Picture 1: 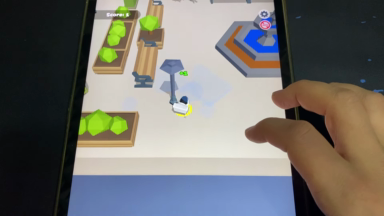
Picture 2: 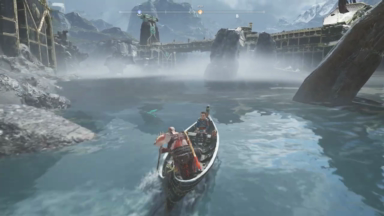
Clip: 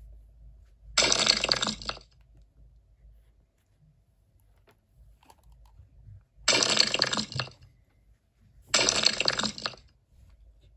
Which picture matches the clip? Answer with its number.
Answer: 1